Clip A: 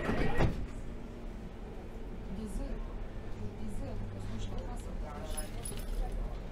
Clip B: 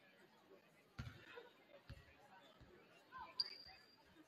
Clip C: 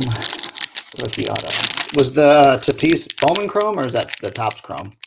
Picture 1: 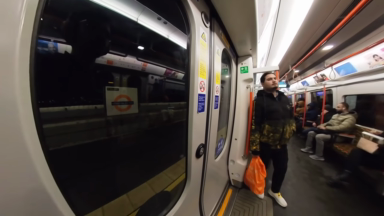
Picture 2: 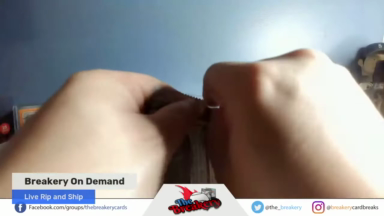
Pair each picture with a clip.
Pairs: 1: A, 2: C